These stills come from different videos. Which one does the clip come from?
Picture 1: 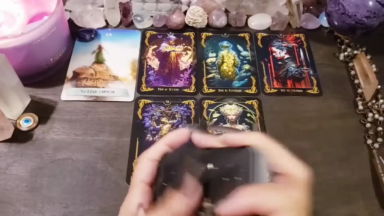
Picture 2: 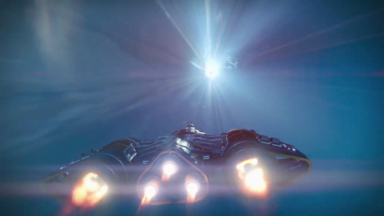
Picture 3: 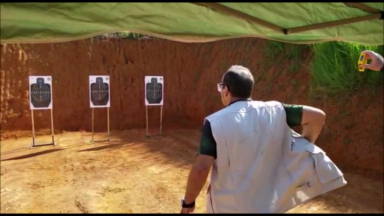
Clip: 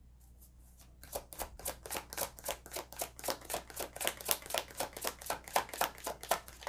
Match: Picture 1